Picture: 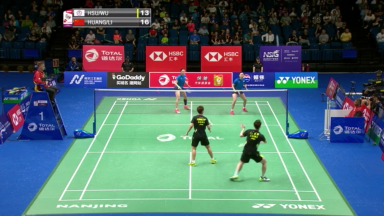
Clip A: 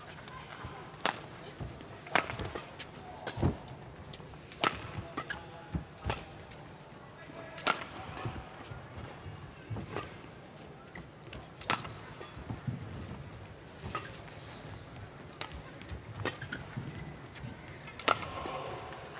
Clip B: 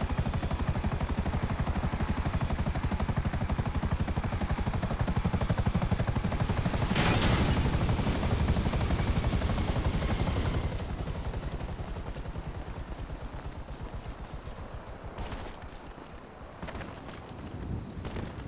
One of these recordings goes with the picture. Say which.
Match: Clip A